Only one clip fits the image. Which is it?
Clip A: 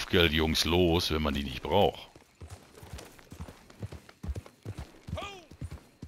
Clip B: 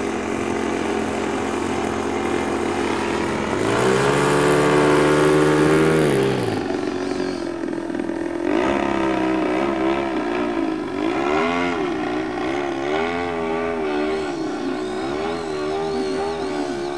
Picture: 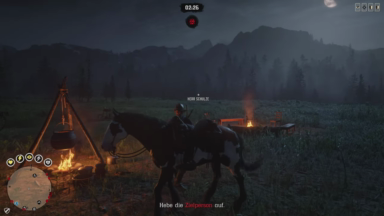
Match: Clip A